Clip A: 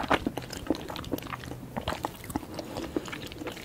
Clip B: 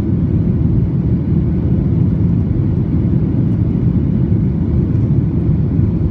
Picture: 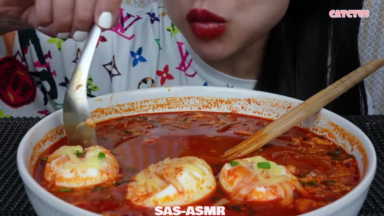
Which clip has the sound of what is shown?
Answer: A